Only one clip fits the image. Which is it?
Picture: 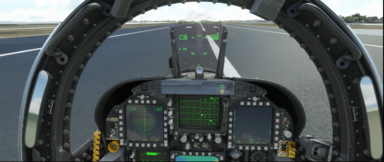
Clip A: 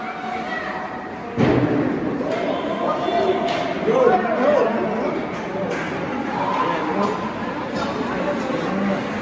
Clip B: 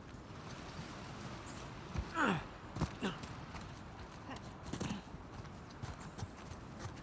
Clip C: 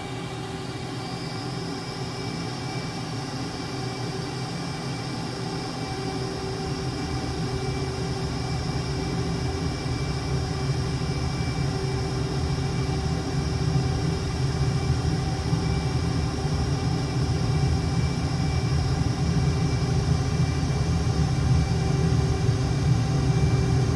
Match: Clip C